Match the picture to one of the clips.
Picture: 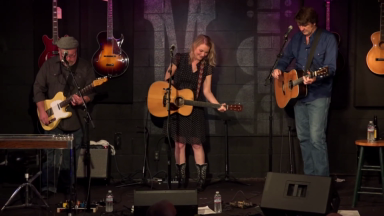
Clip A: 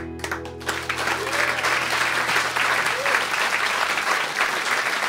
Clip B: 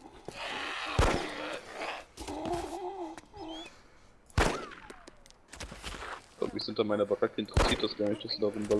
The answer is A